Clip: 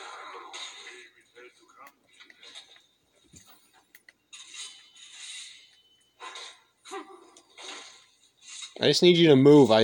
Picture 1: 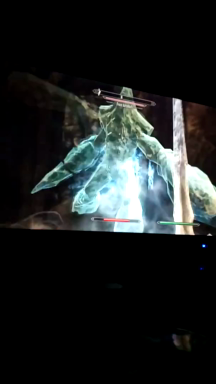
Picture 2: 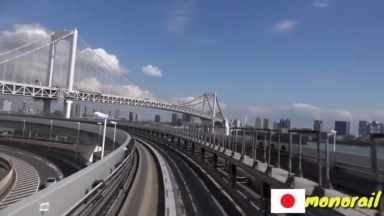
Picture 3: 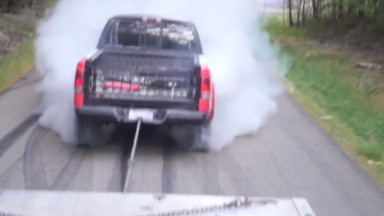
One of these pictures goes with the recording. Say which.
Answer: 1